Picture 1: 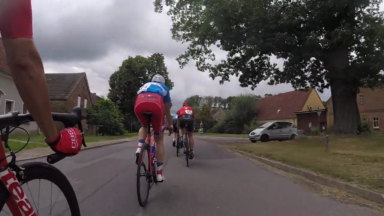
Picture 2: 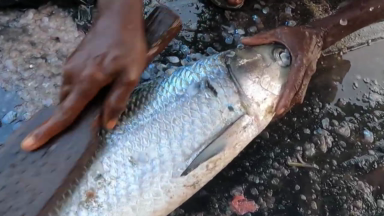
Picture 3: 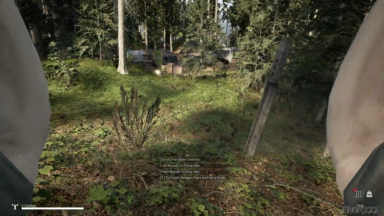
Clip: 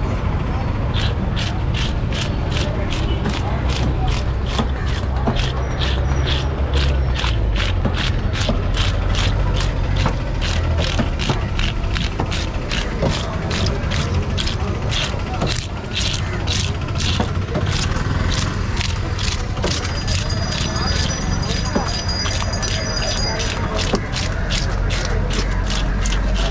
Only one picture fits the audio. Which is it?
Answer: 2